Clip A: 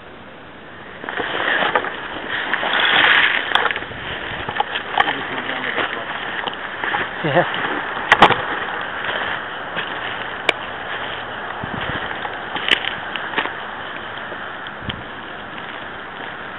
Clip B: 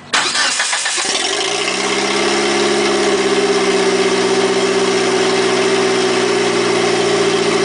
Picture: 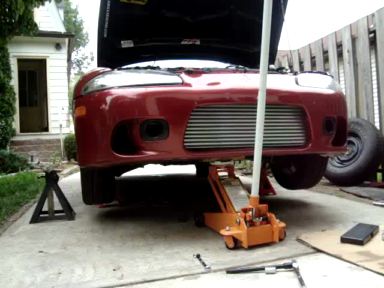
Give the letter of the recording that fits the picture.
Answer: B